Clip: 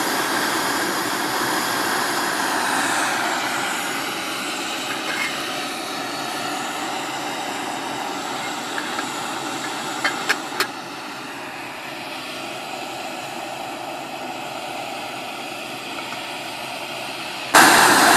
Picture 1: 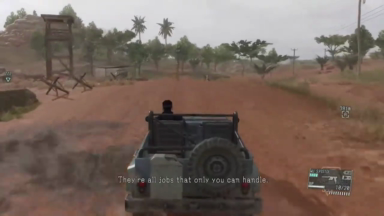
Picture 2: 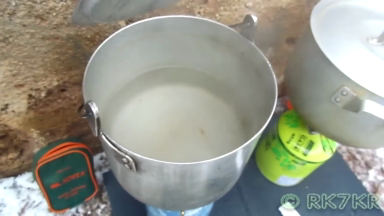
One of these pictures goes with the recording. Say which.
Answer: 2